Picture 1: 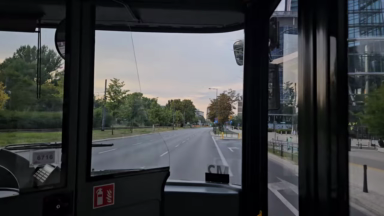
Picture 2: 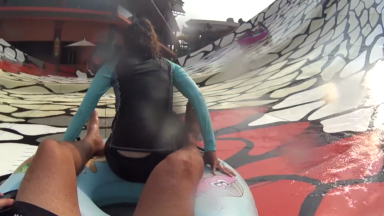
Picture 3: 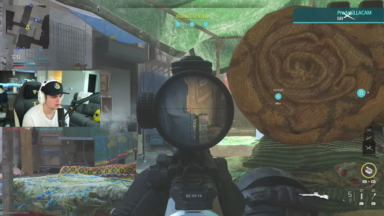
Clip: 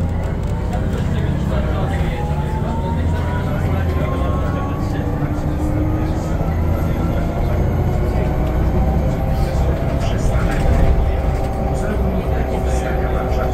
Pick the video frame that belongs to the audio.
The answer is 1